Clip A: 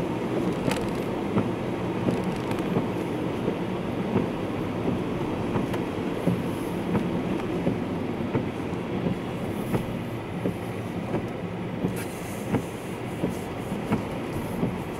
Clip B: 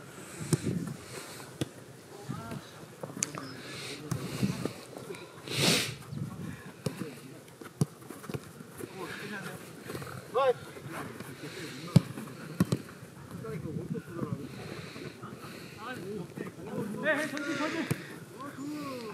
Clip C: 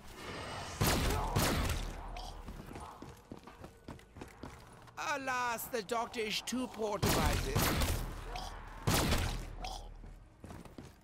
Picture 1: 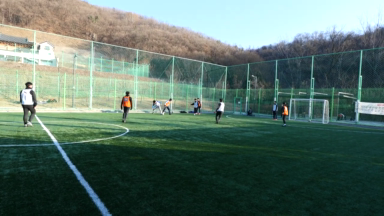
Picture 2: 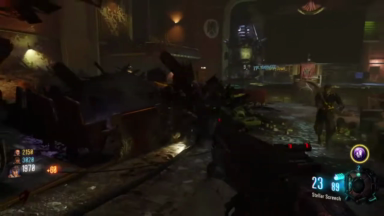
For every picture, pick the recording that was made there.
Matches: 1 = B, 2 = C